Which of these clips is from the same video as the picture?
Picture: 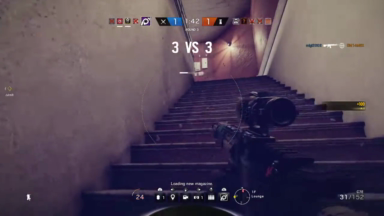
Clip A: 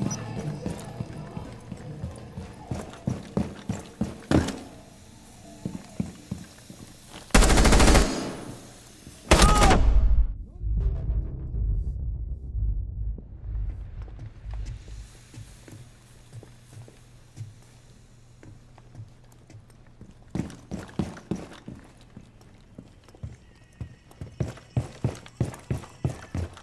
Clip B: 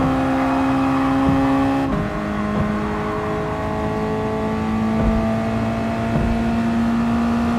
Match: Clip A